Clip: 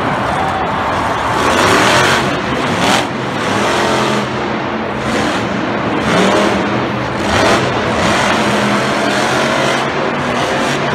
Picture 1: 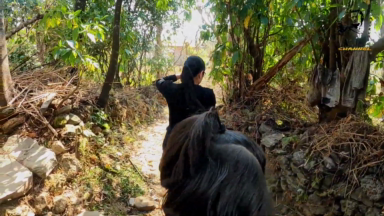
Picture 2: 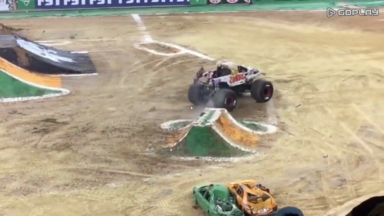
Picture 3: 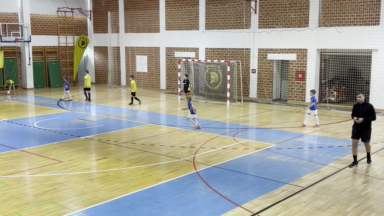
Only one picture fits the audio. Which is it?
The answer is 2